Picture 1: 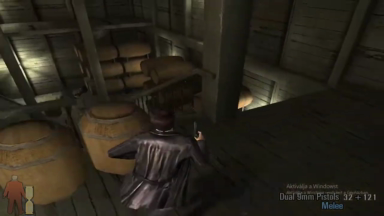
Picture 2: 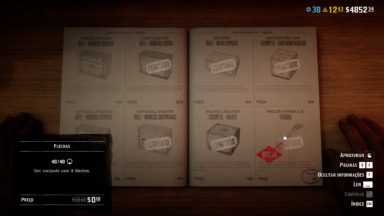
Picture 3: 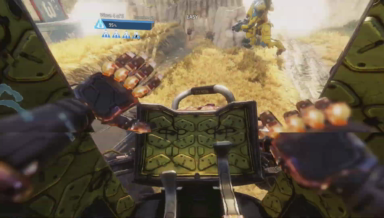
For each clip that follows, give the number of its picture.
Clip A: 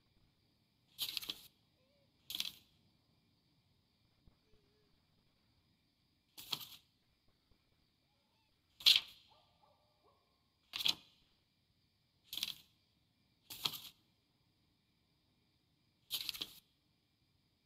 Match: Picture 2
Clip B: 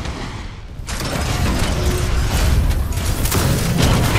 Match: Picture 3